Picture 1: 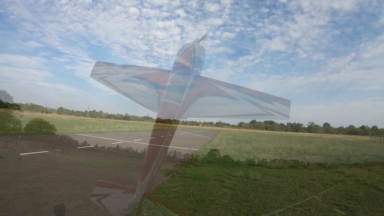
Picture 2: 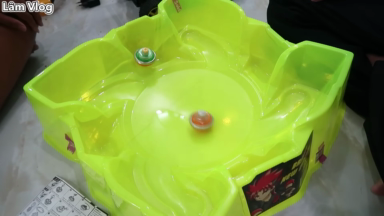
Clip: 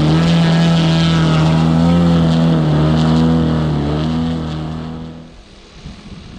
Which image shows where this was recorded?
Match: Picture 1